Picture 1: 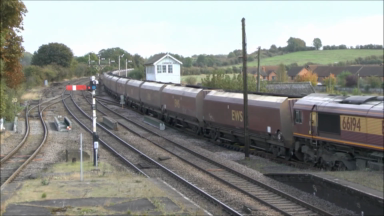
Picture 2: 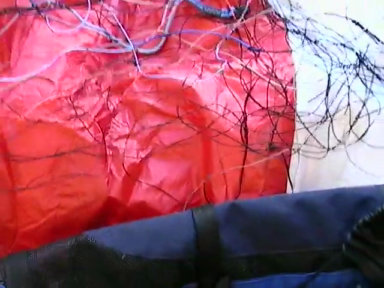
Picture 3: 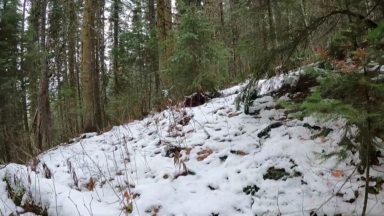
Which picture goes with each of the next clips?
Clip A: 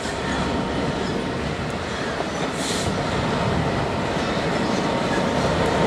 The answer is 1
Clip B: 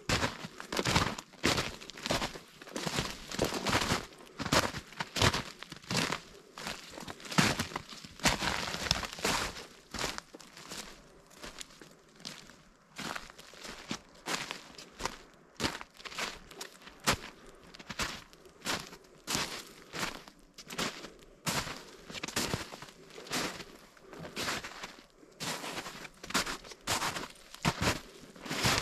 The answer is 3